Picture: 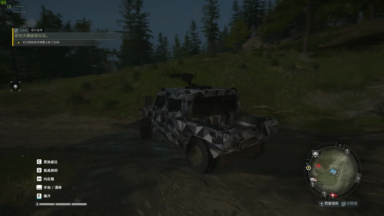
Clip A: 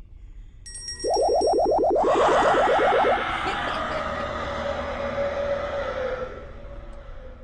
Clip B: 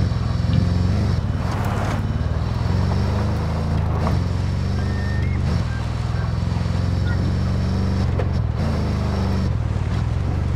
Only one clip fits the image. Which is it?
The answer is B